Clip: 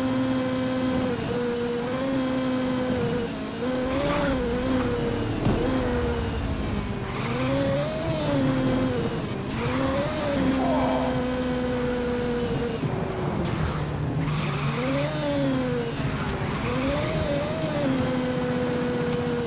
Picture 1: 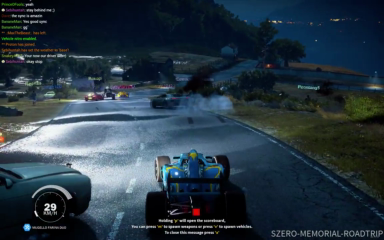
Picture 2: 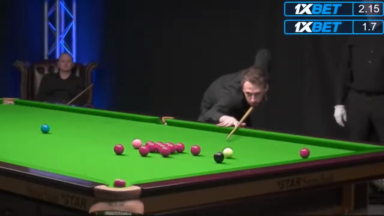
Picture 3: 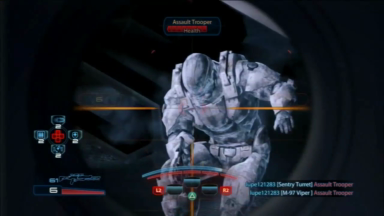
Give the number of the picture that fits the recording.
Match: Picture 1